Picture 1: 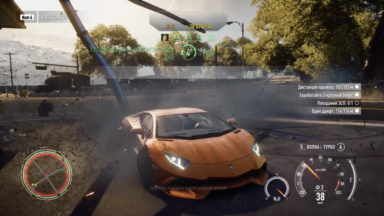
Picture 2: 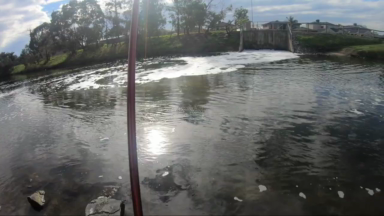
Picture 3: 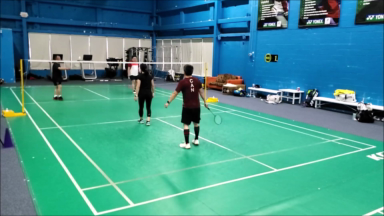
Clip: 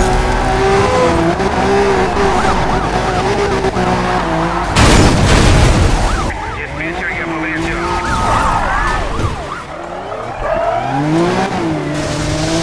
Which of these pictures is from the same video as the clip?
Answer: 1